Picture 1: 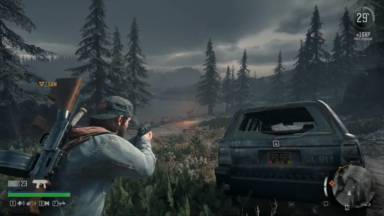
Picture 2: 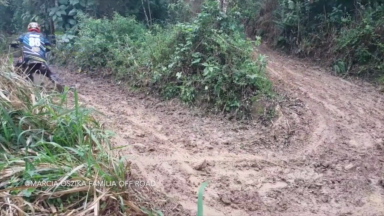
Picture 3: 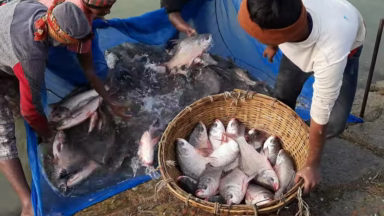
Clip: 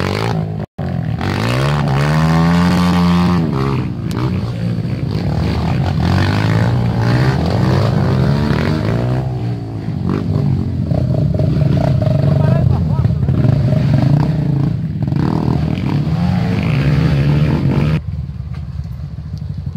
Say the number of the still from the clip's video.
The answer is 2